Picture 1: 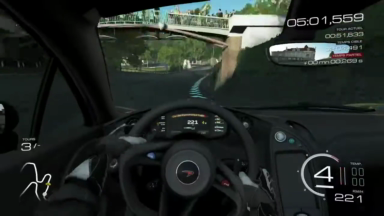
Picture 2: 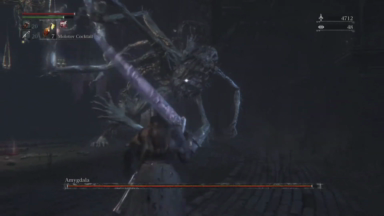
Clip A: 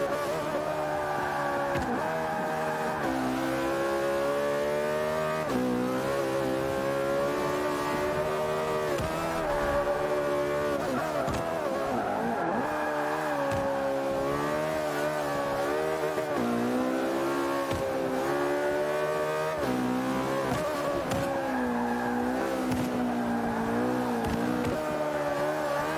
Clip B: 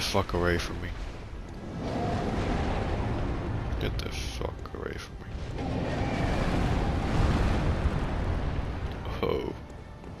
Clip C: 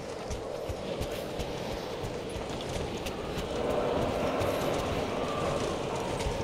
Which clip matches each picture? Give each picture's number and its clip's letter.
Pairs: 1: A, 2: B